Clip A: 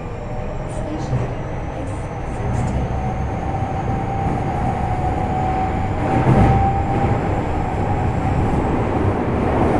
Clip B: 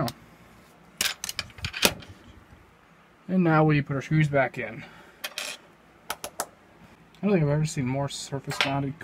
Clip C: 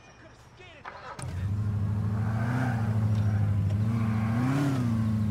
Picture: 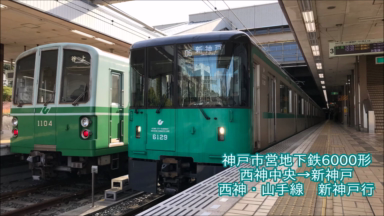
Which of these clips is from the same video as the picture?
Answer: A